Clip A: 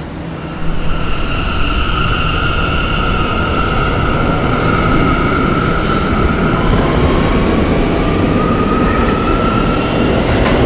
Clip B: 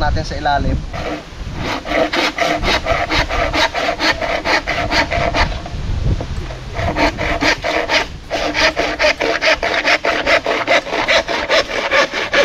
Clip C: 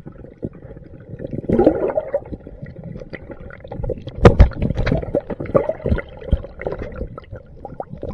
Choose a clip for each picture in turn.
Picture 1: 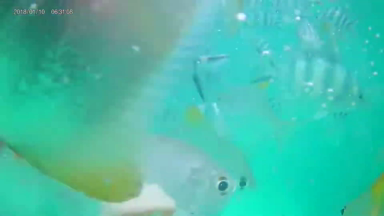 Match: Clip C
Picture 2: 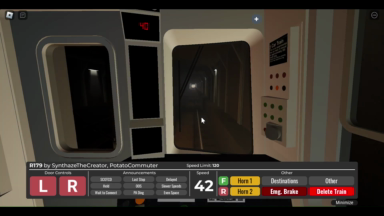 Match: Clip A